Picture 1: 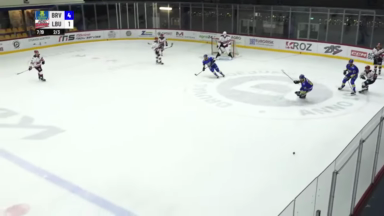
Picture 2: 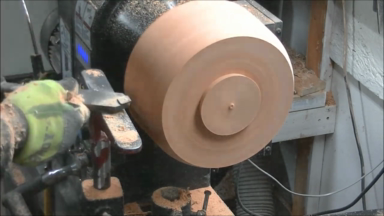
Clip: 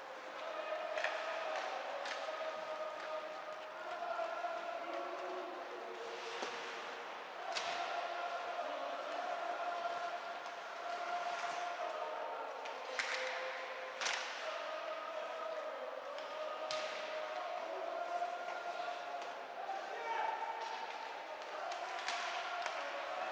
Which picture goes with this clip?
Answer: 1